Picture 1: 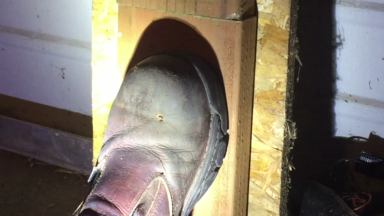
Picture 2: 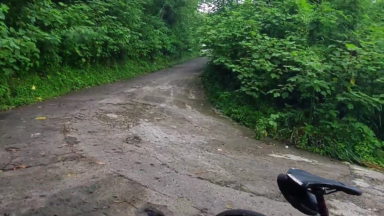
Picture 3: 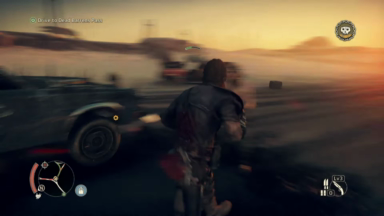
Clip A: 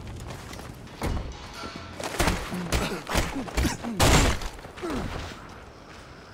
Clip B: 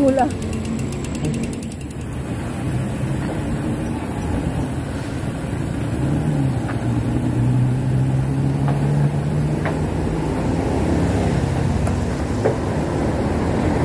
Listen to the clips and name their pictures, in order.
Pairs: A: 3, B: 2